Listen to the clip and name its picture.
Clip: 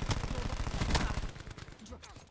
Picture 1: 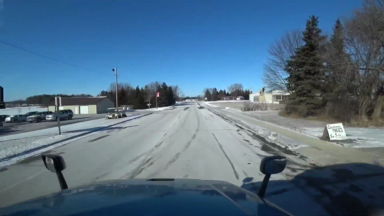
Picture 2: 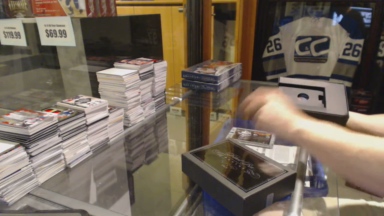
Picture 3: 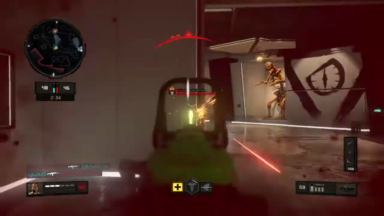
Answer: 3